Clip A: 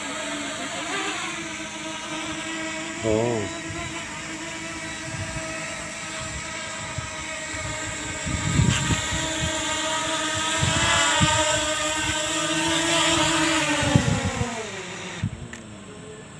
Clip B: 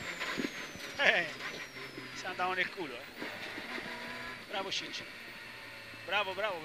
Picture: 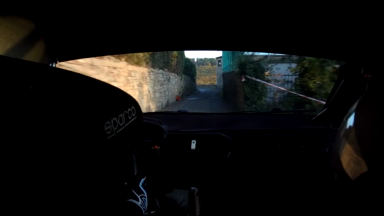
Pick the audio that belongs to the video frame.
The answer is B